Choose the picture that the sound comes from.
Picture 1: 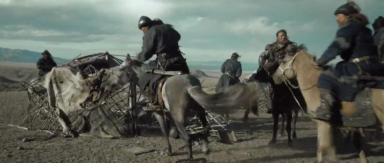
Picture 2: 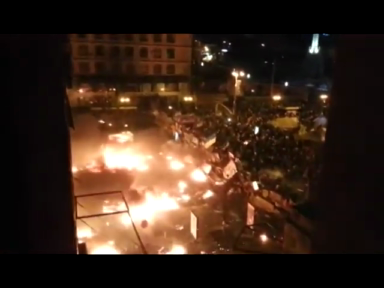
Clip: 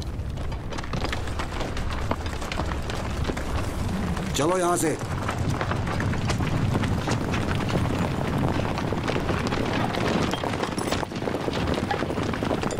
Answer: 1